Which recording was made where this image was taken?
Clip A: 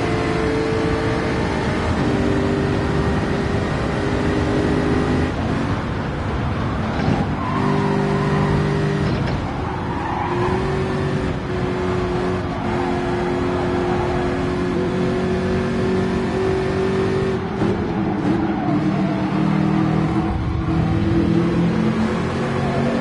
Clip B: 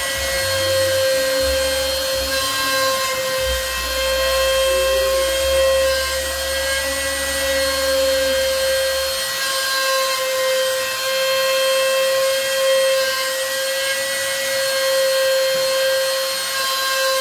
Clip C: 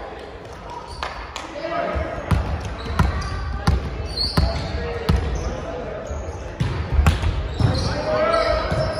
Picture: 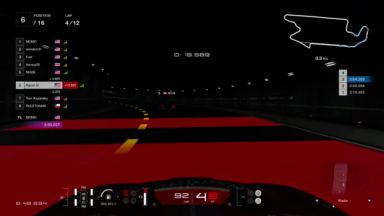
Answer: A